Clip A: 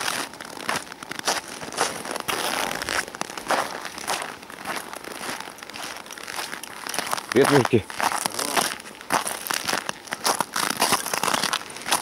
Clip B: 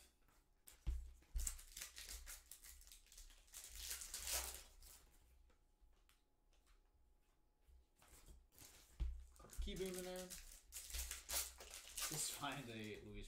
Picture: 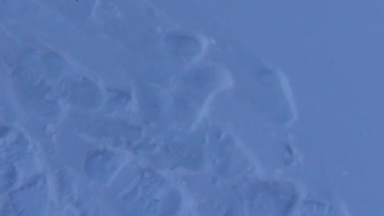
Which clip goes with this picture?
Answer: A